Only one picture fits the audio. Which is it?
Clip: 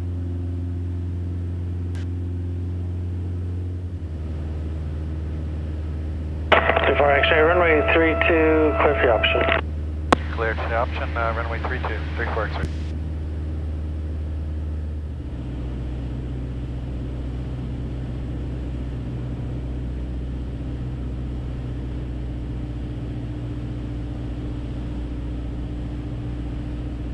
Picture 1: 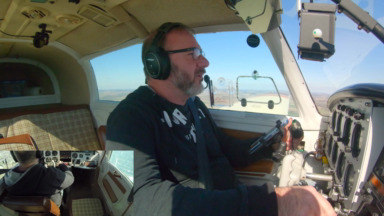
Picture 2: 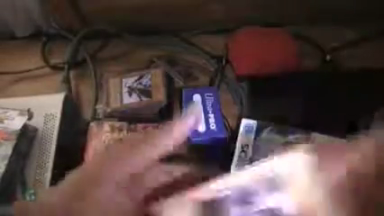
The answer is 1